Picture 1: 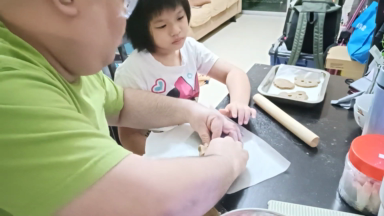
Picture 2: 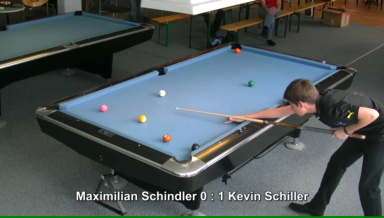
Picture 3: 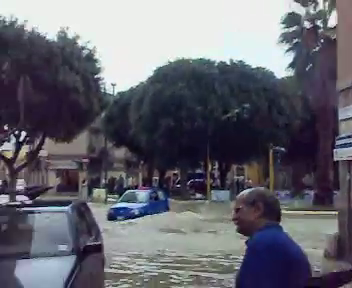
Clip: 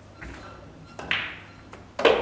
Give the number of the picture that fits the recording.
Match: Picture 2